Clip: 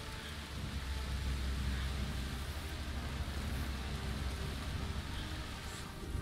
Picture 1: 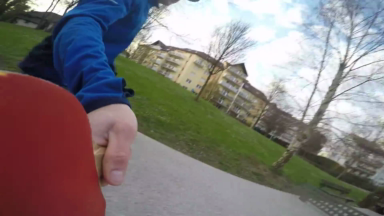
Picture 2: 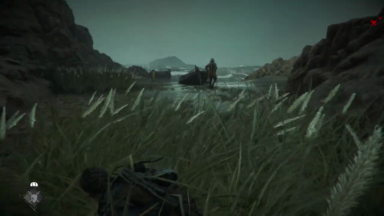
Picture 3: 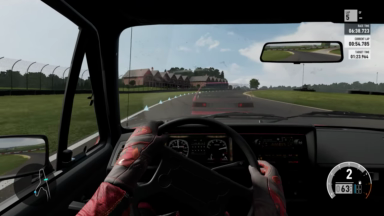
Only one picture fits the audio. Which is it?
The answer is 2